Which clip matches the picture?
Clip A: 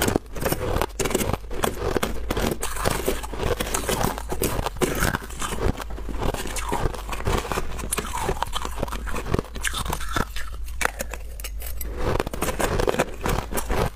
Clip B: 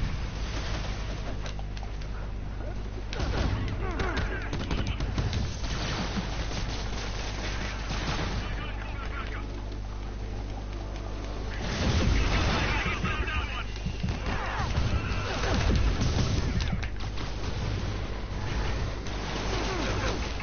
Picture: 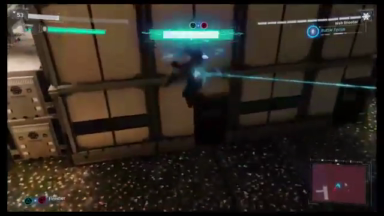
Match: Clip B